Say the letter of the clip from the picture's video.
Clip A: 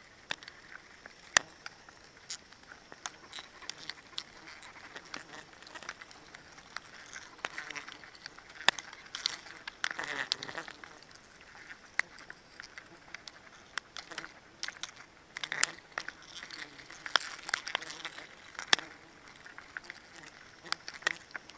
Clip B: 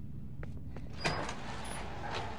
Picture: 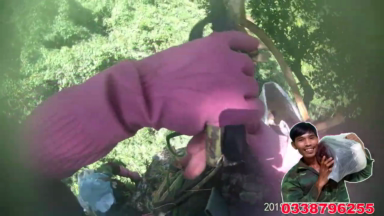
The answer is A